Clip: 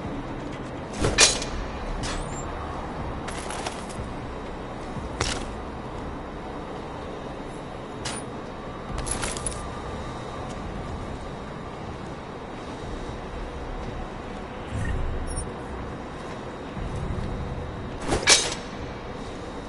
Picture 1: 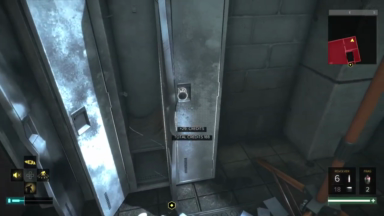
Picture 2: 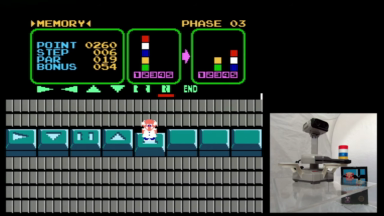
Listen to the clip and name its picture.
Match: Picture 1